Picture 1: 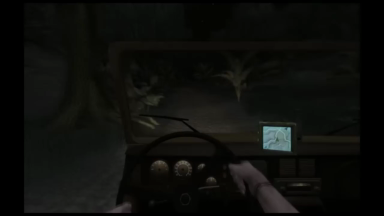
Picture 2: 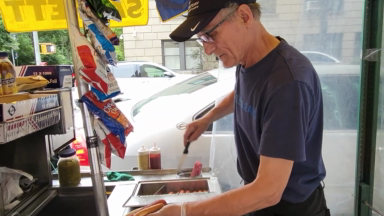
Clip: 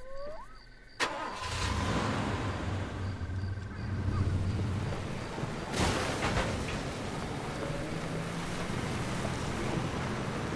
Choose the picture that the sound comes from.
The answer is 1